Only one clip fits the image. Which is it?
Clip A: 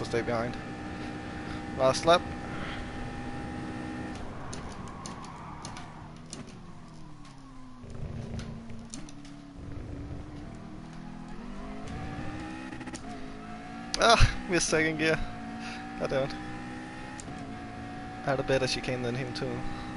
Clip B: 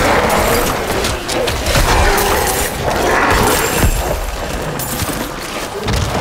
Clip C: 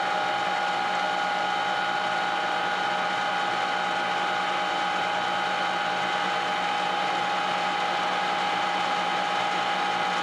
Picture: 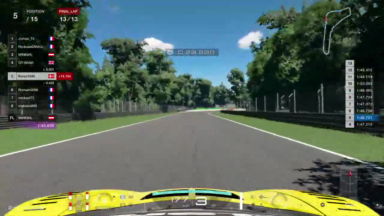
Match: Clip A